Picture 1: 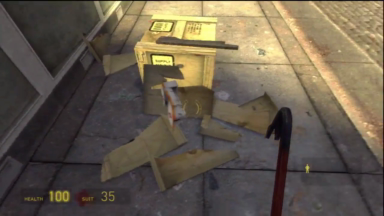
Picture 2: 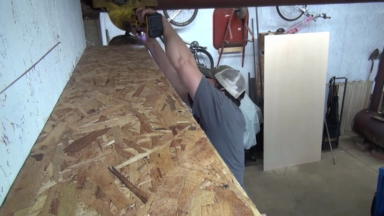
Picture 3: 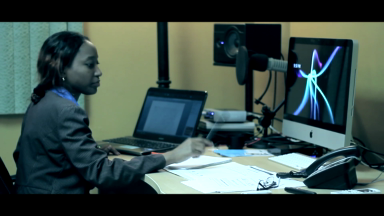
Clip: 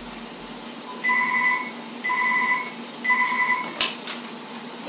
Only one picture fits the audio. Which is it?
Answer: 3